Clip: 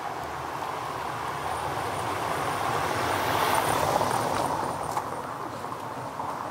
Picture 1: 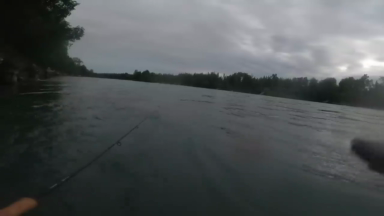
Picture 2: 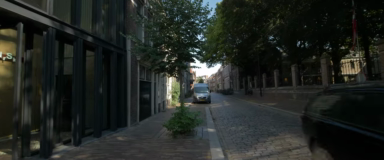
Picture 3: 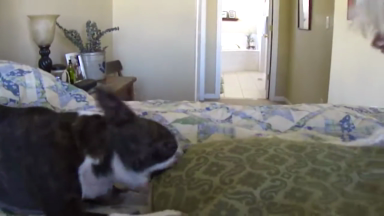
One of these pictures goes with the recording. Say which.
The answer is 2